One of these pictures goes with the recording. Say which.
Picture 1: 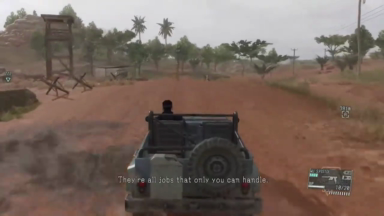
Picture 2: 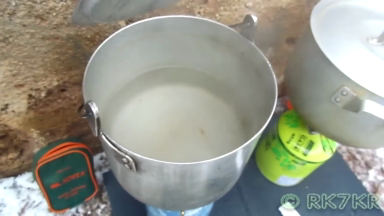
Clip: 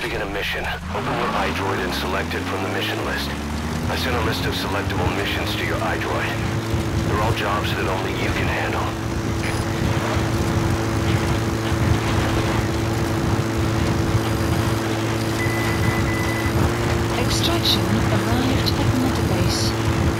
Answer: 1